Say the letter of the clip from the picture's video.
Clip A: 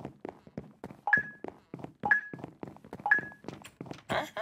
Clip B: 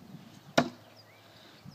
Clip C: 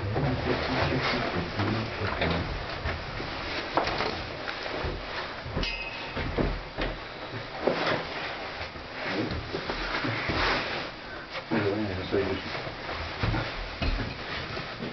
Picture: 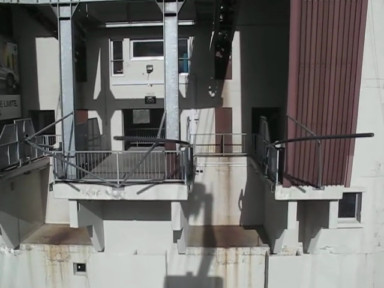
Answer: C